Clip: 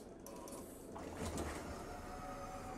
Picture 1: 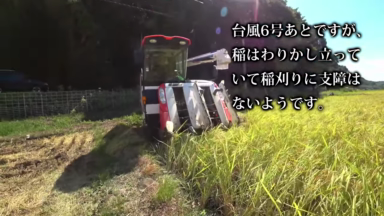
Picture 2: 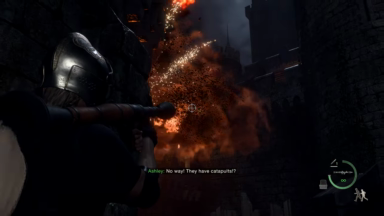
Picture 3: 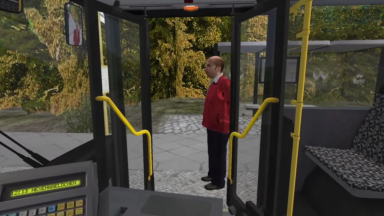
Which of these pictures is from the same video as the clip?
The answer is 3